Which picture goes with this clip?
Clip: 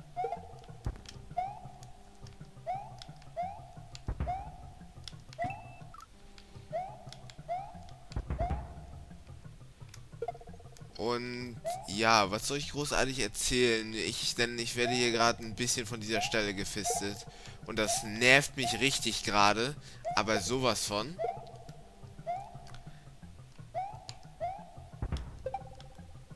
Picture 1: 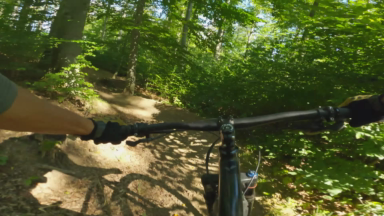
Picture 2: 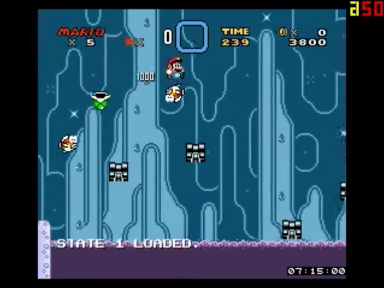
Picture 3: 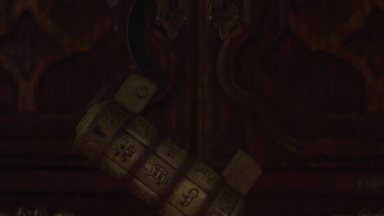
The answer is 2